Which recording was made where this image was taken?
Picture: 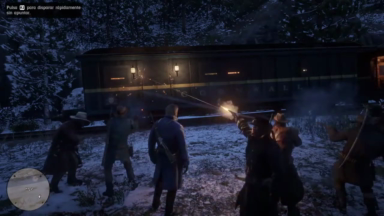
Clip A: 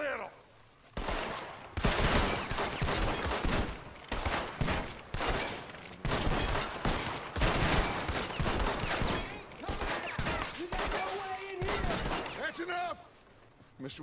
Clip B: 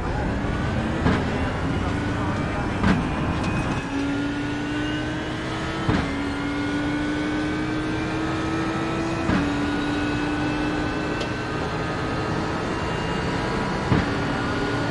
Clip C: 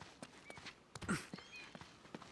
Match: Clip A